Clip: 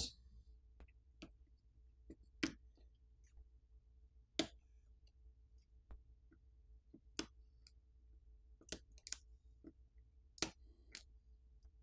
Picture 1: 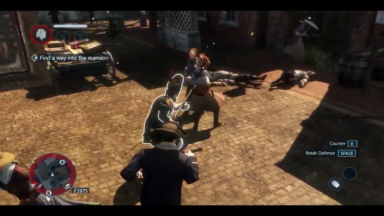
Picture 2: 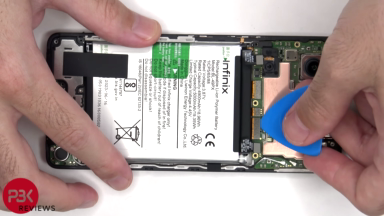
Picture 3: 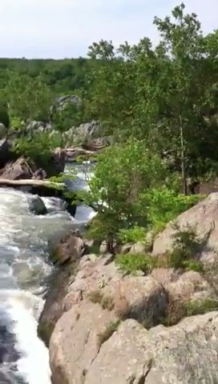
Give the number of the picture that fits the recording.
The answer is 2